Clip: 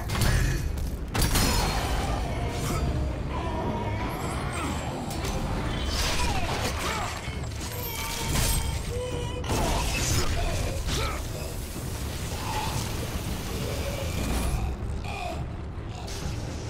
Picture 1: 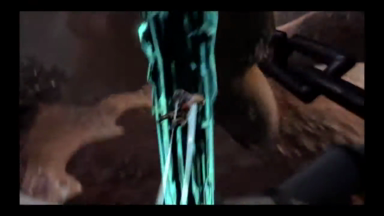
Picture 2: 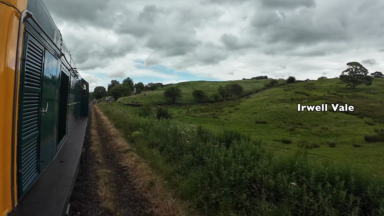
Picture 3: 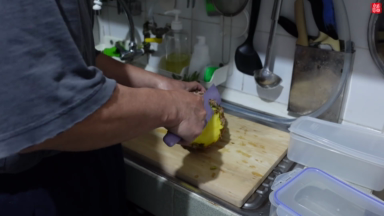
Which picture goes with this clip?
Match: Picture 1